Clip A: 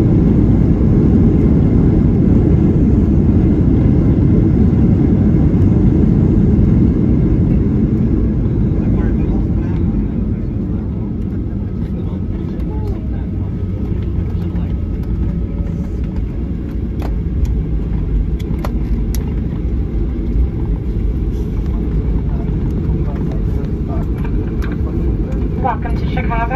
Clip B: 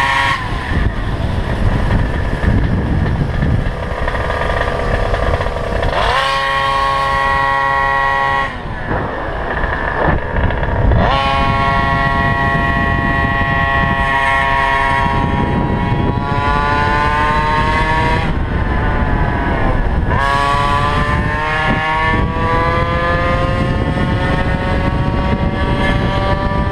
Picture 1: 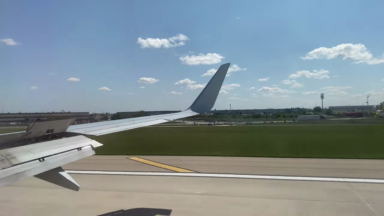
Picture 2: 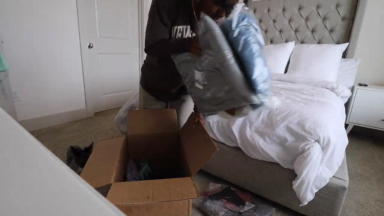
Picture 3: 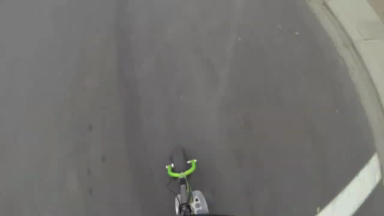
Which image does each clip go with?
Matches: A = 1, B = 3